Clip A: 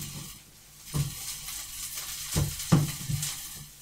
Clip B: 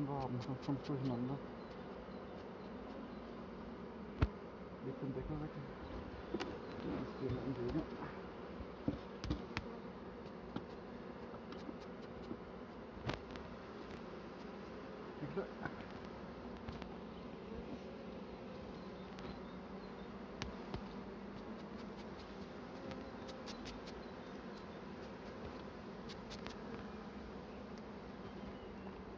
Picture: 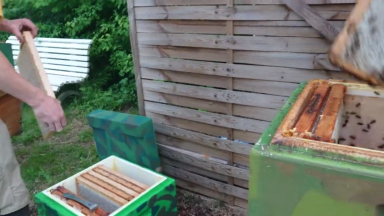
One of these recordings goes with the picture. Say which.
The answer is B